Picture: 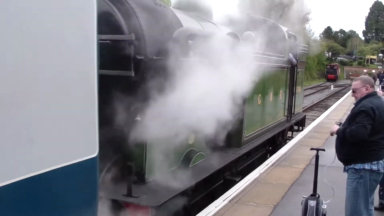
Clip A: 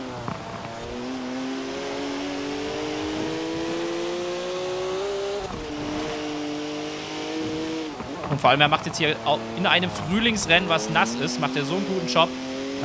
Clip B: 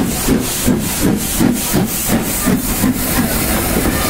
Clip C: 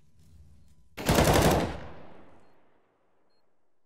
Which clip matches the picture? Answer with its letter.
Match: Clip B